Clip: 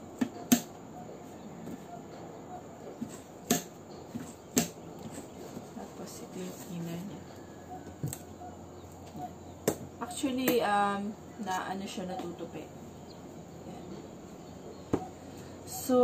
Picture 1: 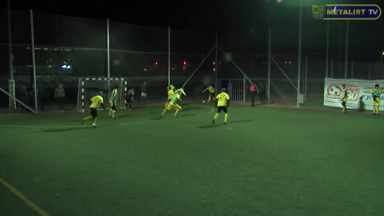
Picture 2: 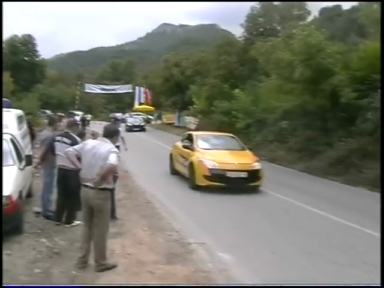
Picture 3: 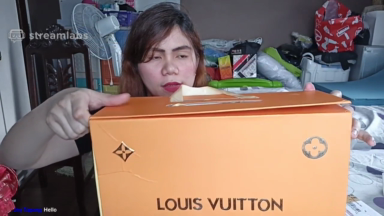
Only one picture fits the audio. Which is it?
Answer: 3